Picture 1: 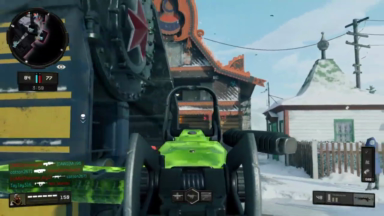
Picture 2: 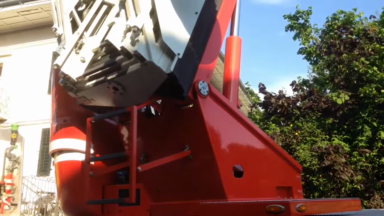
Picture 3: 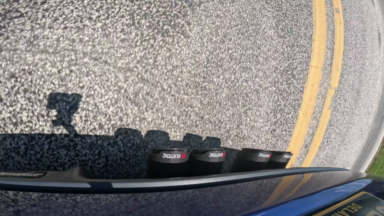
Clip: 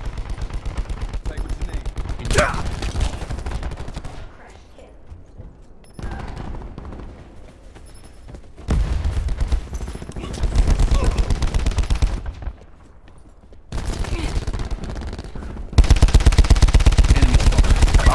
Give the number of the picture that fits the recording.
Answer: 1